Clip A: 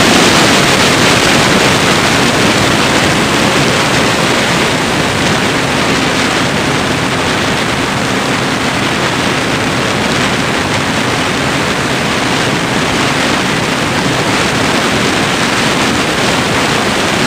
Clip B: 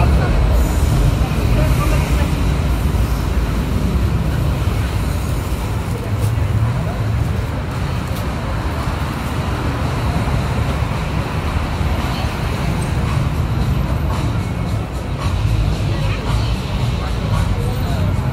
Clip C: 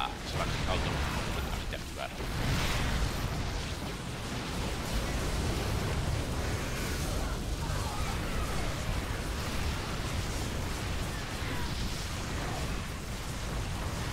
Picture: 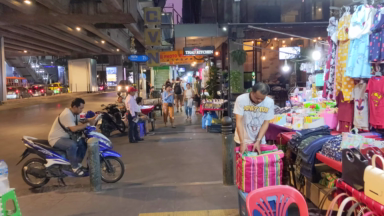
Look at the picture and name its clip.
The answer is B